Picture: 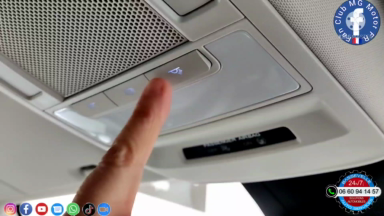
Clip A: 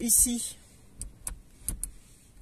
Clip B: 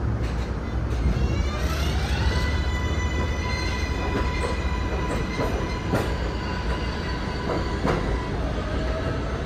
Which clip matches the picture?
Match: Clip A